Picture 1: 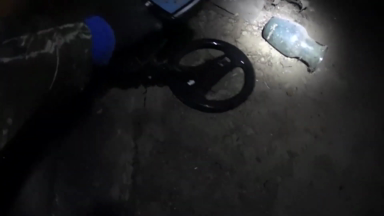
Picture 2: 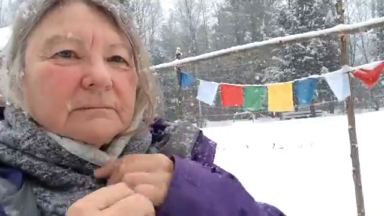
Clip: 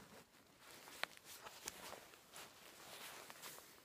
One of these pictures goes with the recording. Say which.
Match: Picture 2